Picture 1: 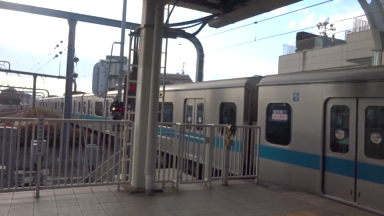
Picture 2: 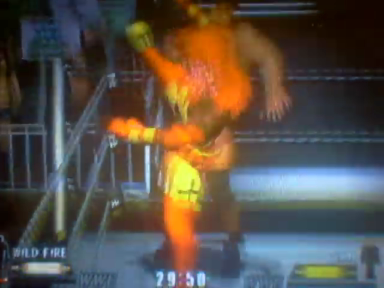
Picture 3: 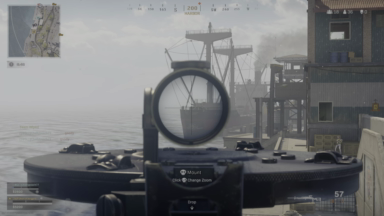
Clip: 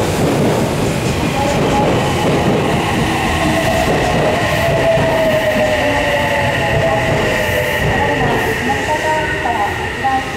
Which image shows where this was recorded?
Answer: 1